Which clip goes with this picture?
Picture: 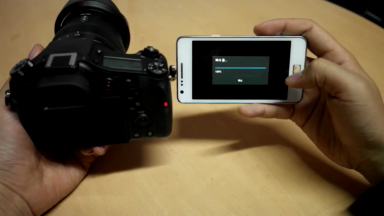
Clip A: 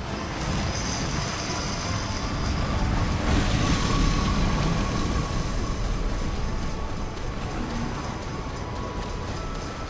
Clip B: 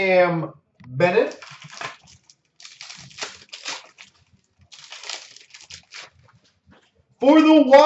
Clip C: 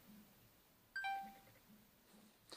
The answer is C